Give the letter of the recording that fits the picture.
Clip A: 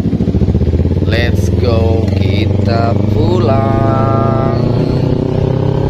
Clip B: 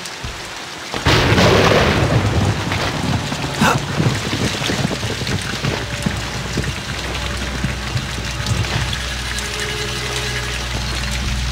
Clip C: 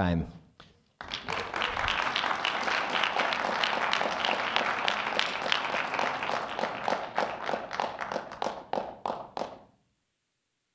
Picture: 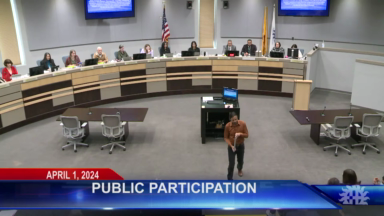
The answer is C